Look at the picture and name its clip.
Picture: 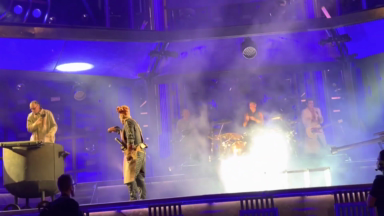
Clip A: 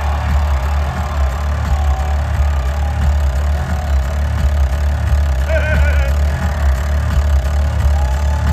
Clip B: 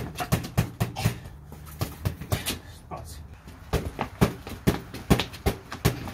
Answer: A